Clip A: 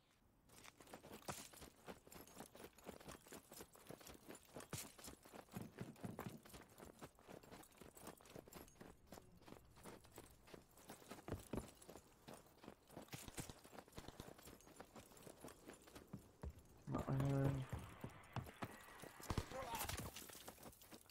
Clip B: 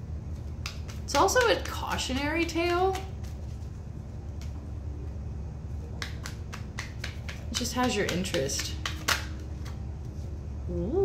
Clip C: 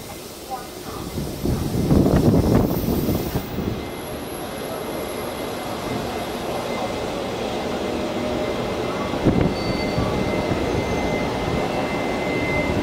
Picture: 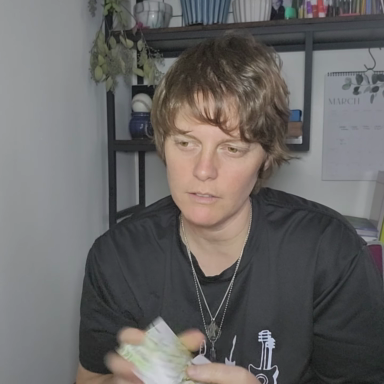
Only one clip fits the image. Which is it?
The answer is B